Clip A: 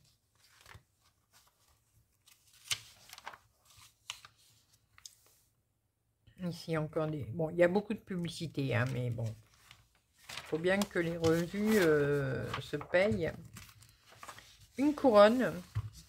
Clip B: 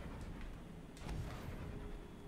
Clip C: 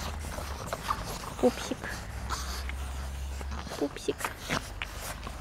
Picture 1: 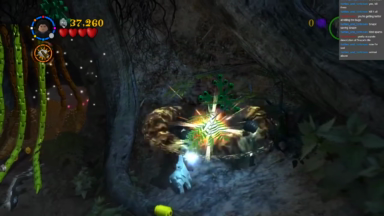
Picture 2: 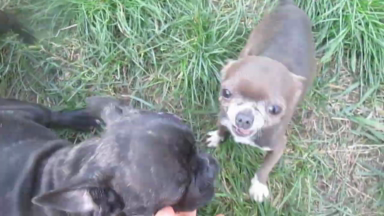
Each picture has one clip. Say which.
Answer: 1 B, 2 C